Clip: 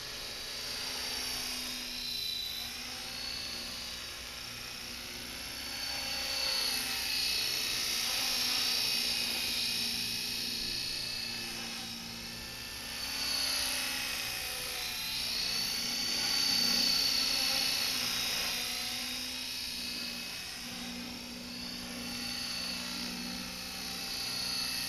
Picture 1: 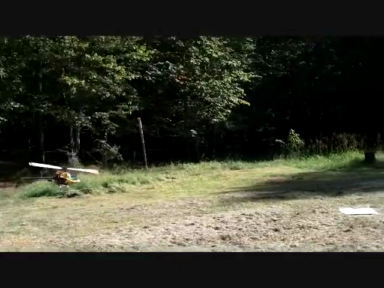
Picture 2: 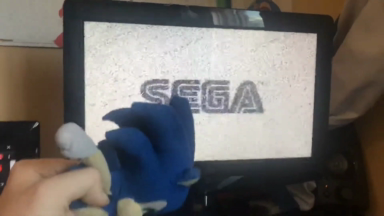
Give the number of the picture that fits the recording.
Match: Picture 1